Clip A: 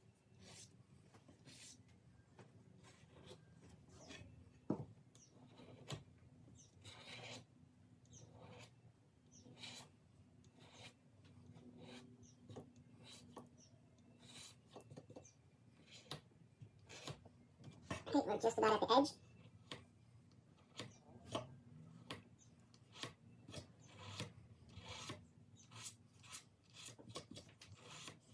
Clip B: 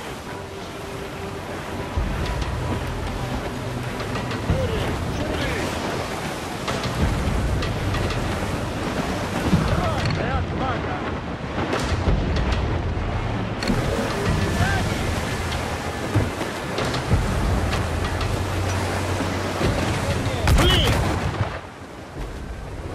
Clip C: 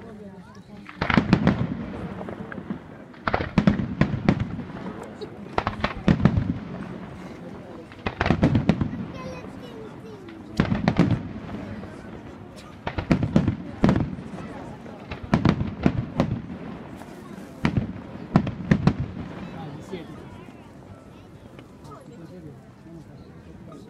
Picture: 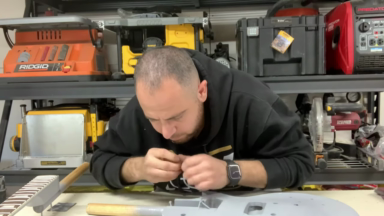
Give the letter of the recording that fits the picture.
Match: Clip A